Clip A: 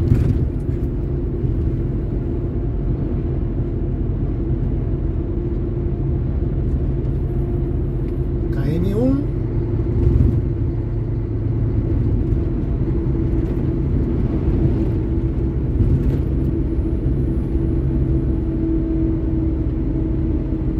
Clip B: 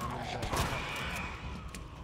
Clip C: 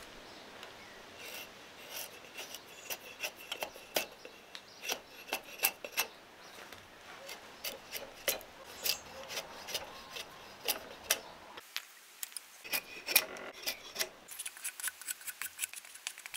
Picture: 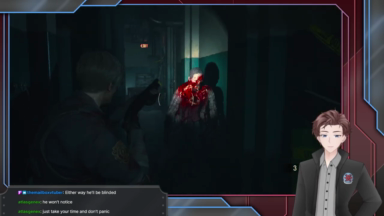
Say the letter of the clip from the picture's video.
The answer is B